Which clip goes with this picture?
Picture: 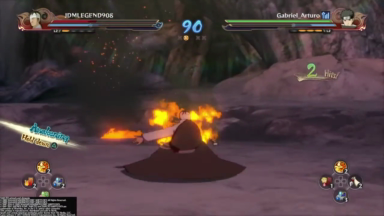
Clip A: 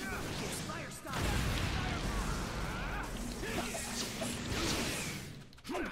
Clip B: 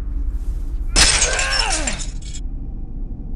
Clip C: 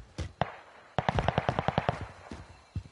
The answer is A